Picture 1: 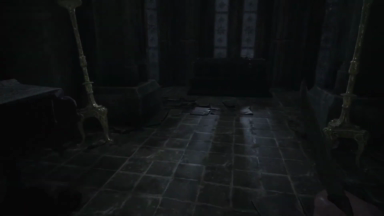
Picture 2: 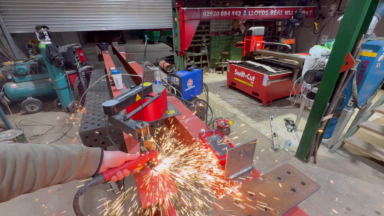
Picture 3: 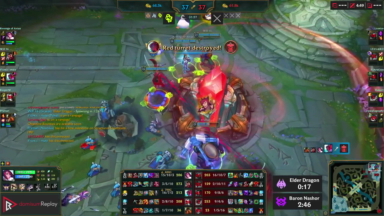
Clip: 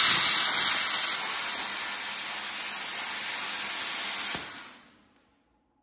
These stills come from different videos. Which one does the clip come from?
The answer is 2